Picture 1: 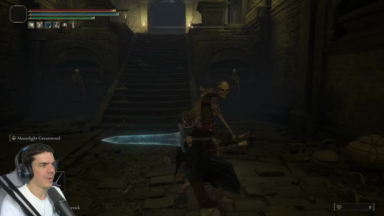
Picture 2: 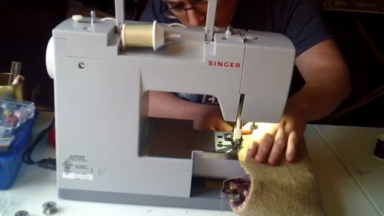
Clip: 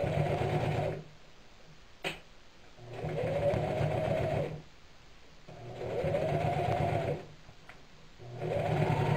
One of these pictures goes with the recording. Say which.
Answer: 2